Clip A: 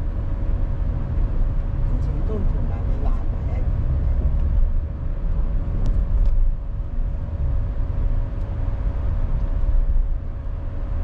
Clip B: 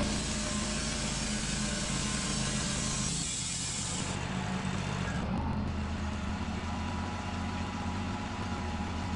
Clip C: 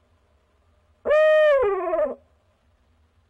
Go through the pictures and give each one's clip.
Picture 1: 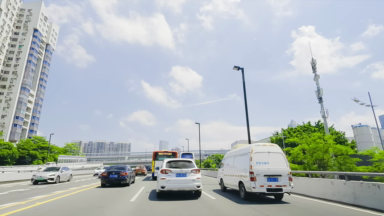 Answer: A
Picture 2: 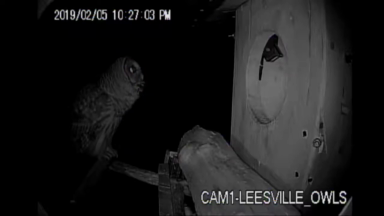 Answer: C